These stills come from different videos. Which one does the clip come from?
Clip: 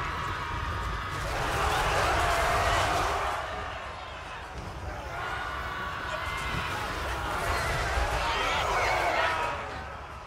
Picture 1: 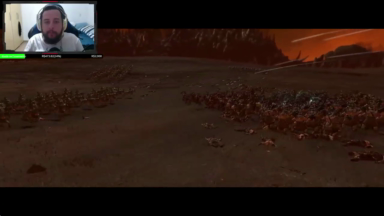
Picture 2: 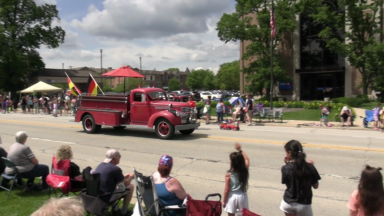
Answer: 1